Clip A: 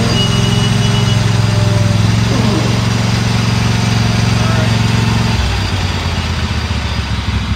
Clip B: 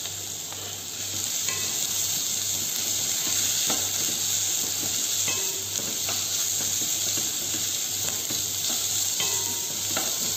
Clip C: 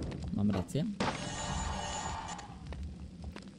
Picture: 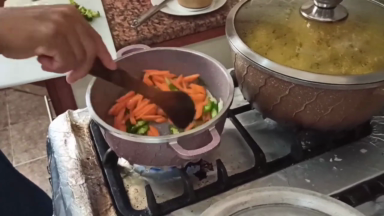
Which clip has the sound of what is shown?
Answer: B